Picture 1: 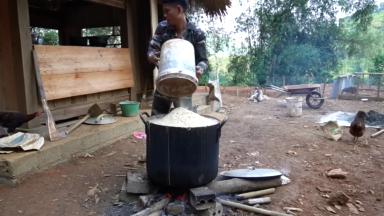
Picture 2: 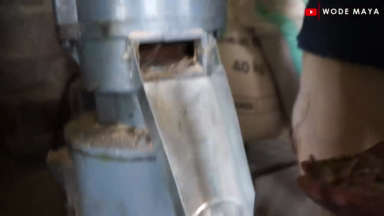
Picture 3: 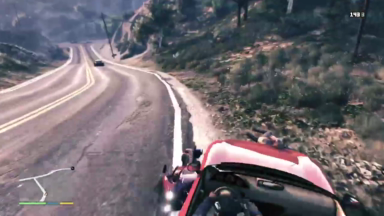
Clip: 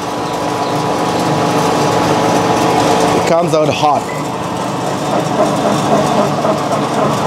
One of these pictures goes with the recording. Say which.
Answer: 2